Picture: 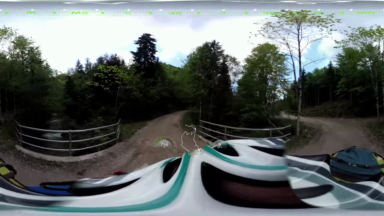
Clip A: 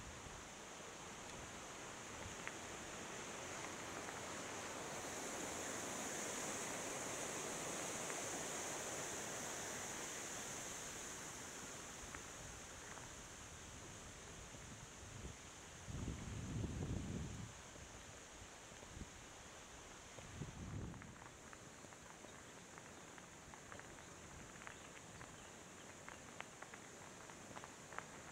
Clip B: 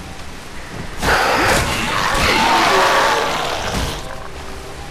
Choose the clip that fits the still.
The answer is A